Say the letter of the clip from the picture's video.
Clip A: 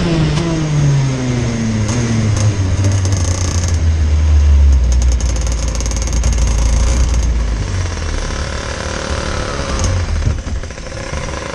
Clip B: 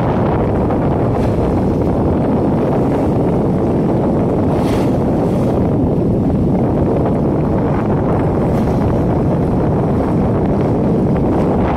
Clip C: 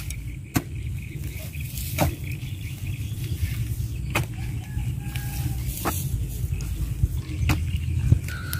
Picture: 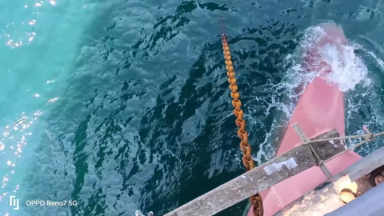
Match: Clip B